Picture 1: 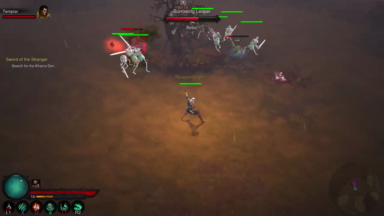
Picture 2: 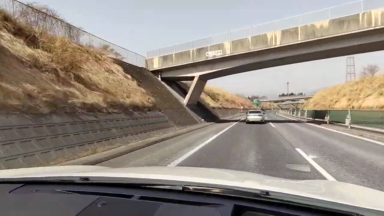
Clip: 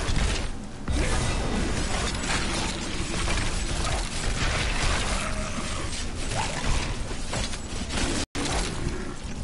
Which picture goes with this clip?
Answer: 1